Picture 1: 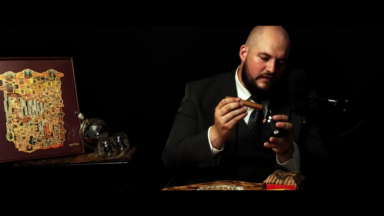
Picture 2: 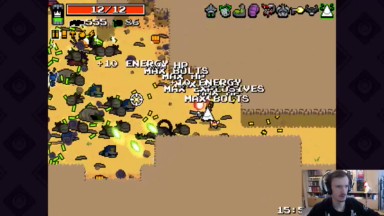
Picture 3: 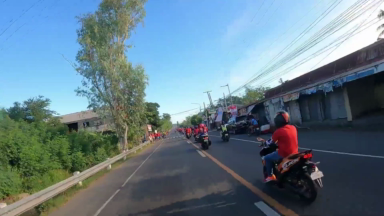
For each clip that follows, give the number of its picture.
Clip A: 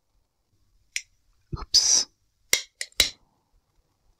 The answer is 1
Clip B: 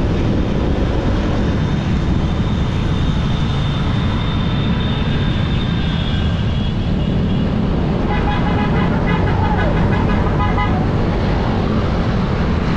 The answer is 3